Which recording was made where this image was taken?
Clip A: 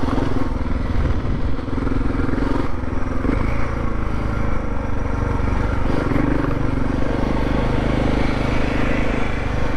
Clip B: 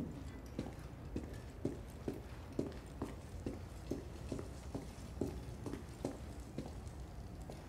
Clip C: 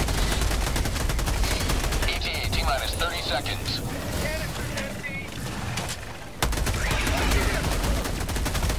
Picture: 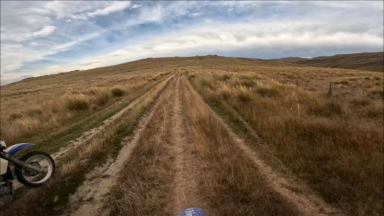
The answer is A